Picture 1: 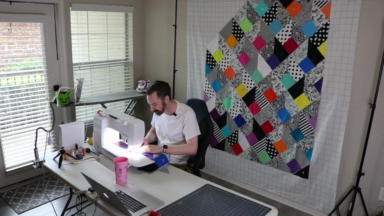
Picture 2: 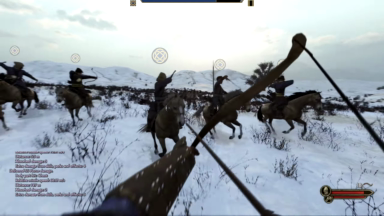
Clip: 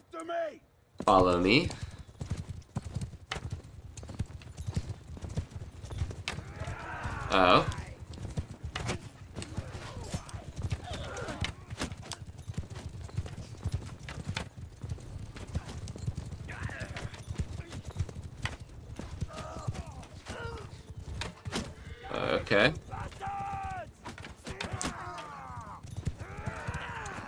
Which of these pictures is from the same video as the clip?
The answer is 2